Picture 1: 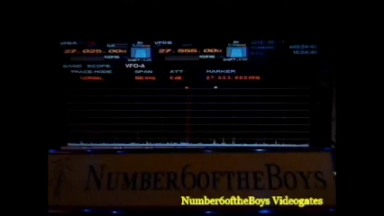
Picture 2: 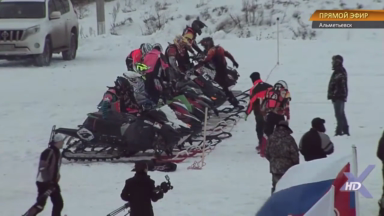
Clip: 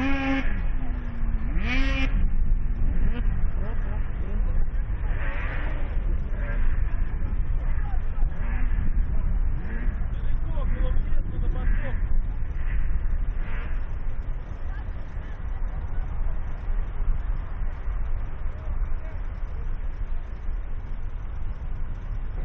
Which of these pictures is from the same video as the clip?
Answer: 2